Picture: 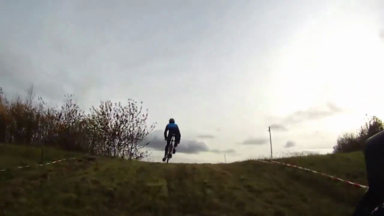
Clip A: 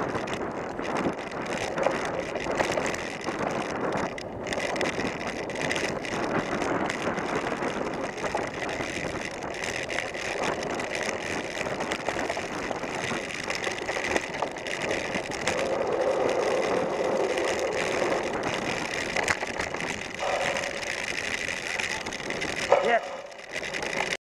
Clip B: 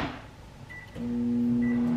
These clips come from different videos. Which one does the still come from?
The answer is A